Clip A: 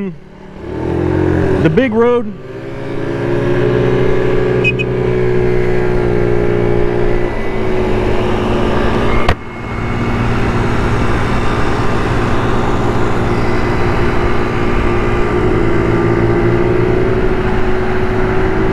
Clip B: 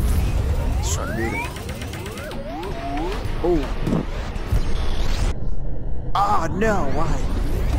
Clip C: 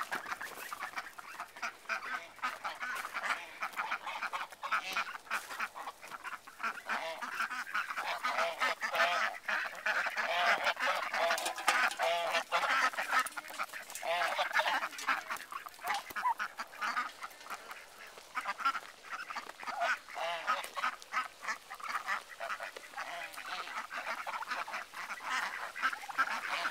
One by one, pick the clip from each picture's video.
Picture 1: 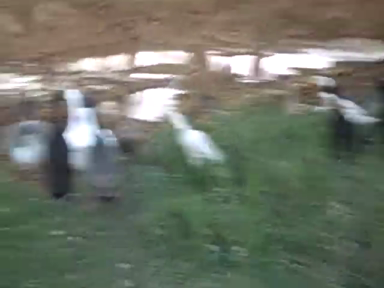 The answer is C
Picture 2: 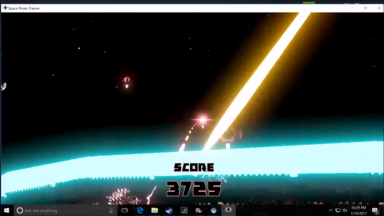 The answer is B